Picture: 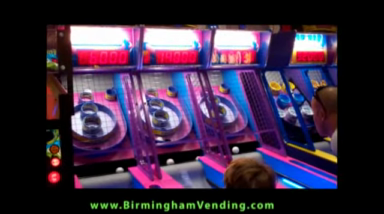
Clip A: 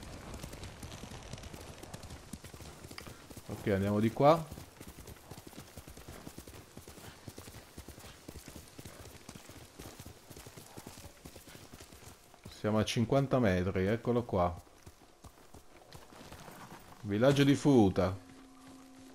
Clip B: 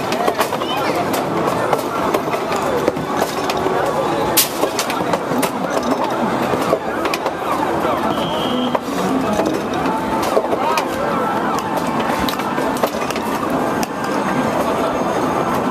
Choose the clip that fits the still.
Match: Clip B